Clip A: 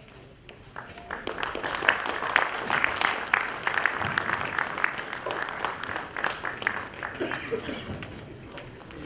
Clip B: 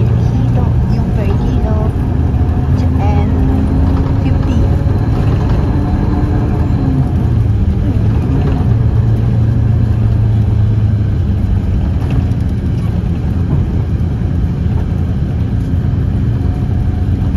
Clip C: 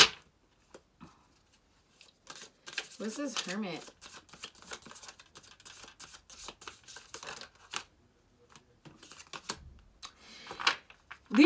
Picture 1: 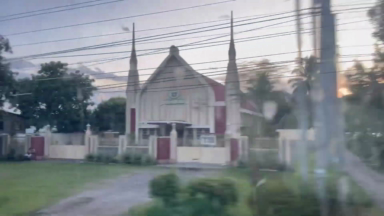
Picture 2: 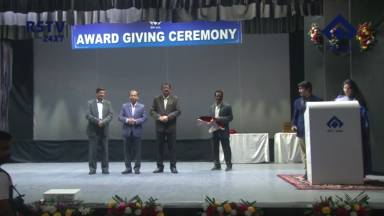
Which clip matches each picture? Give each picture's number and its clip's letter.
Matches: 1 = B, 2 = A